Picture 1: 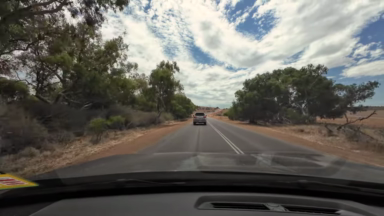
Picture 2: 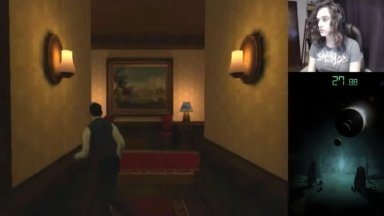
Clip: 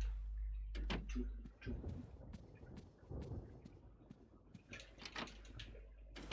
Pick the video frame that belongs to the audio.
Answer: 2